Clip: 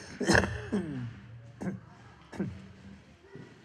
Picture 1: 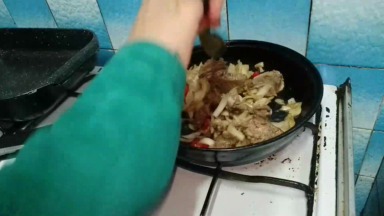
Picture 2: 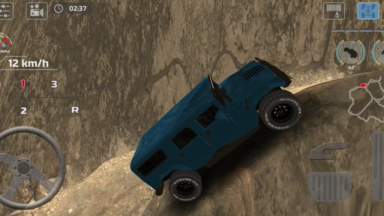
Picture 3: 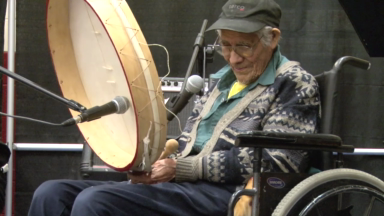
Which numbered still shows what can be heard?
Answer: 3